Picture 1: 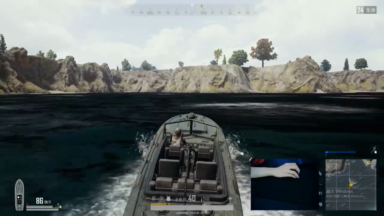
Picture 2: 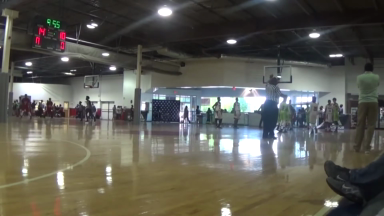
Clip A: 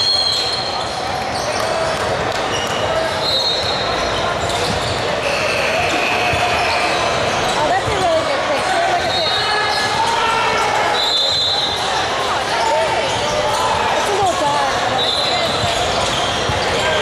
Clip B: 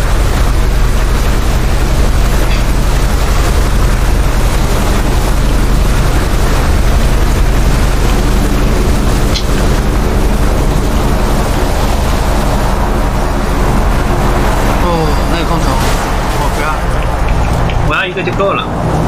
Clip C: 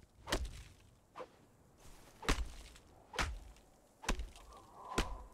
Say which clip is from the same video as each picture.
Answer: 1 B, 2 A